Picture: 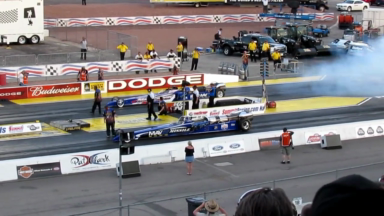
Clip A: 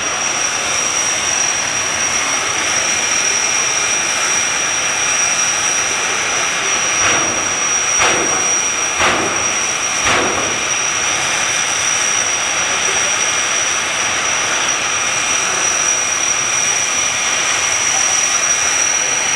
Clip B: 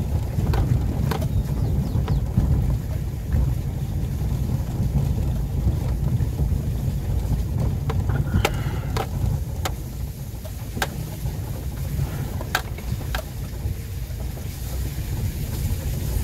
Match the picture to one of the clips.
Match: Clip A